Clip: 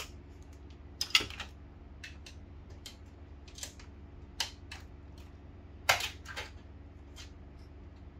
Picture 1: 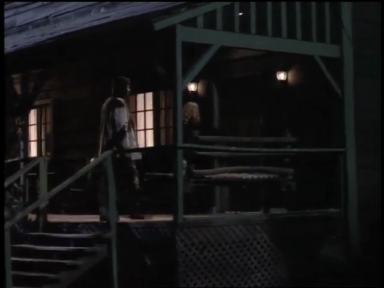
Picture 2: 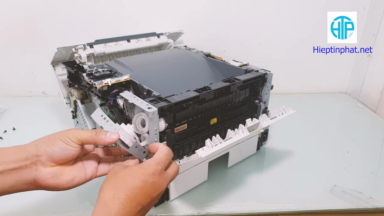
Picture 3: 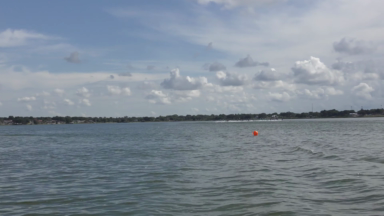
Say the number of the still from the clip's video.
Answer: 2